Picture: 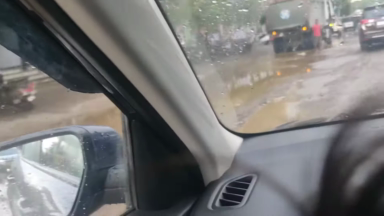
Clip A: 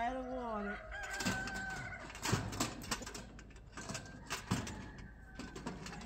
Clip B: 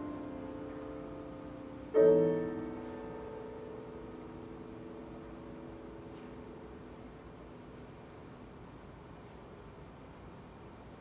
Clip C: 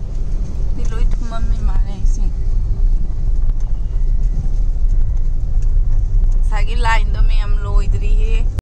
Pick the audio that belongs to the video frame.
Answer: C